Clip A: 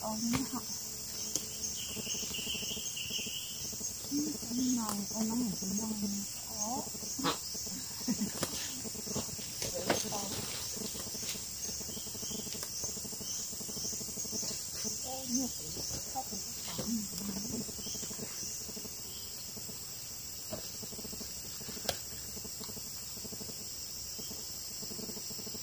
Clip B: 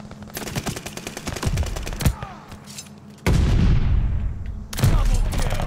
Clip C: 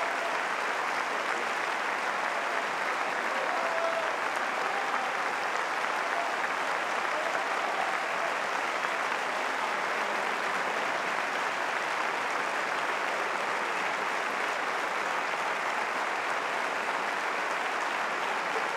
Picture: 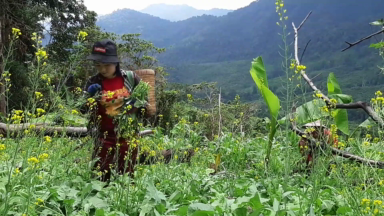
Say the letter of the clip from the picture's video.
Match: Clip A